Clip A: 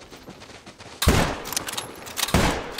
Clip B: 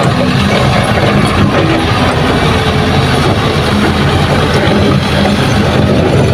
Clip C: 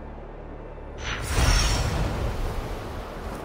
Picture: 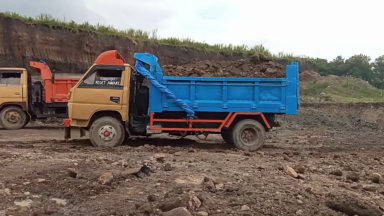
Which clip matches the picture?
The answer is B